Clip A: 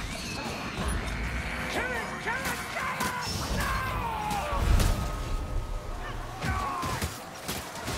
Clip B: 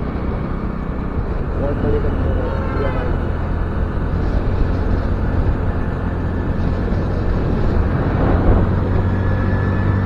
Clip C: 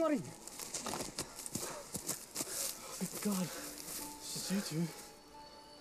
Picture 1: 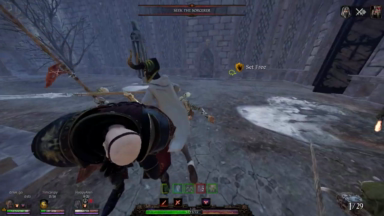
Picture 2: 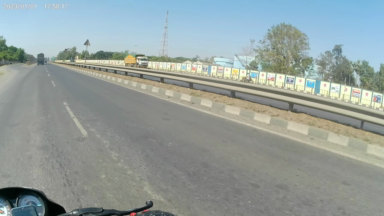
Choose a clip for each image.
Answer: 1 A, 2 B